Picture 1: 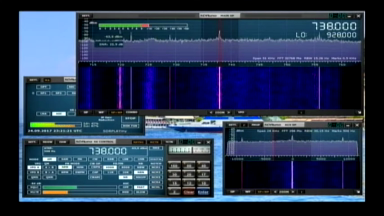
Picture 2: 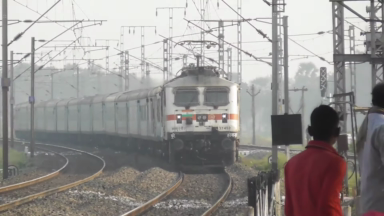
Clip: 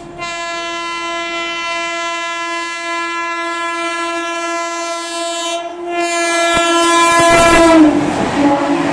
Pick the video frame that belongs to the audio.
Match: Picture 2